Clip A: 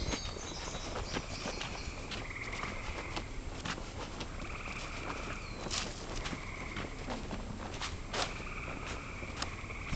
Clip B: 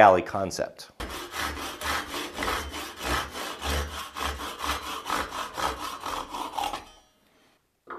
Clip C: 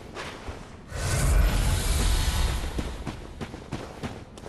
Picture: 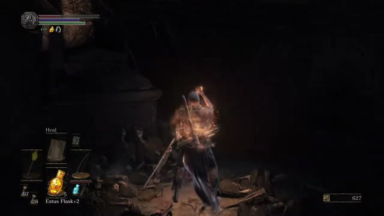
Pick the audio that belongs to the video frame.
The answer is C